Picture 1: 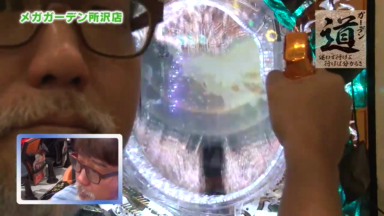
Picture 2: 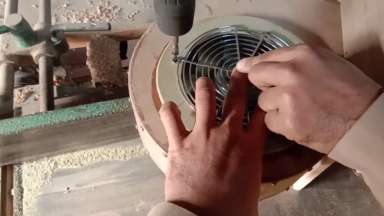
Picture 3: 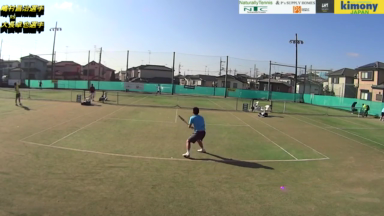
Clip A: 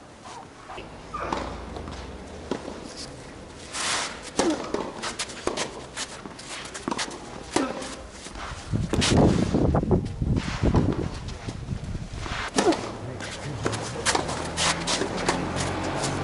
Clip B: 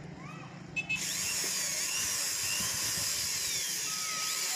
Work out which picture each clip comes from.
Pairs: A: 3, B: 2